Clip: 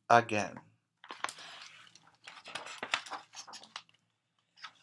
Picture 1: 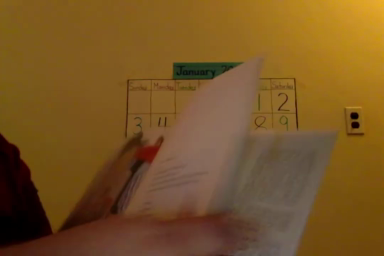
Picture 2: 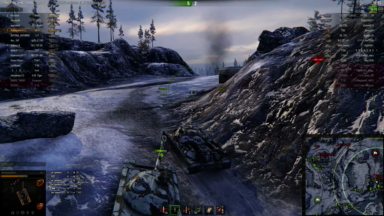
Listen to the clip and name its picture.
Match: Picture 1